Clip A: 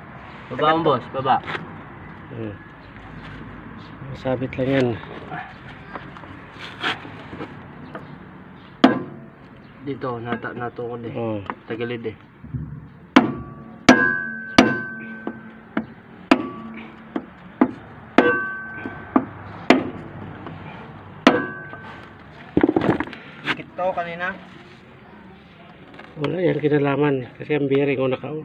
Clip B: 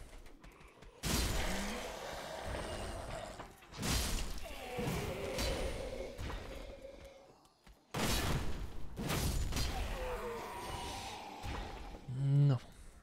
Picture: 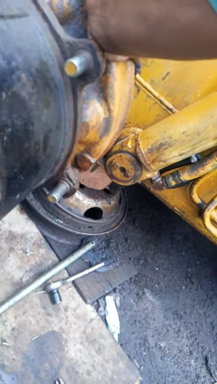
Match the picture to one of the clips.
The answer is A